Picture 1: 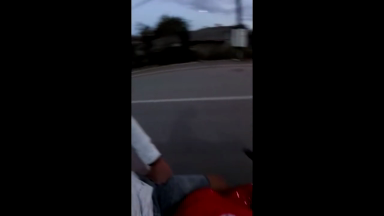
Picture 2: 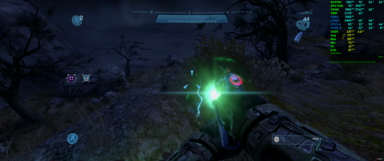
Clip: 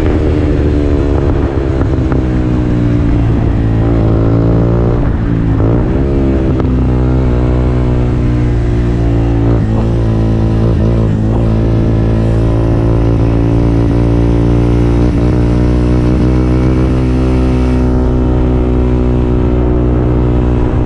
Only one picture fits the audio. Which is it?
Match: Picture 1